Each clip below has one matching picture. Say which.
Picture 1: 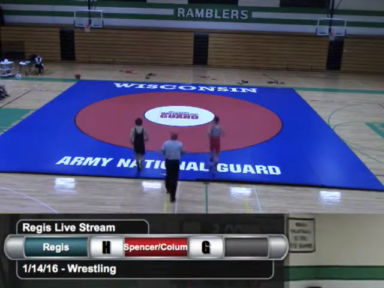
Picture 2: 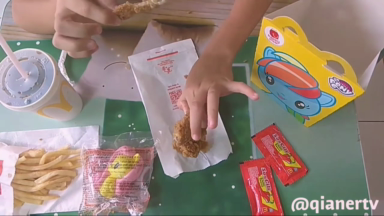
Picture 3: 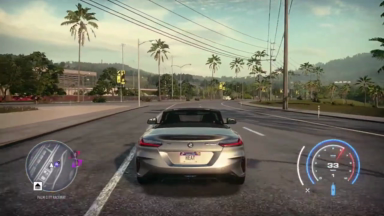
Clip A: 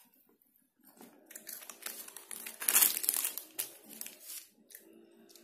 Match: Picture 2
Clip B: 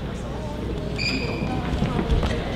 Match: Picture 1